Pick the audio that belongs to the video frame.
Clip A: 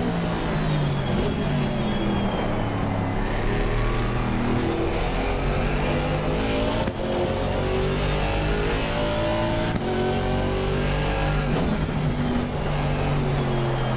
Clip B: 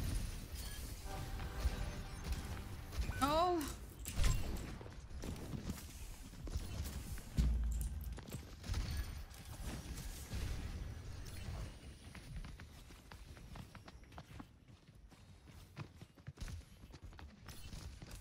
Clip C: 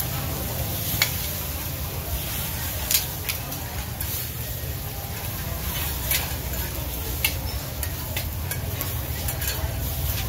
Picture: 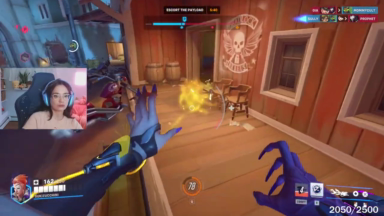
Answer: B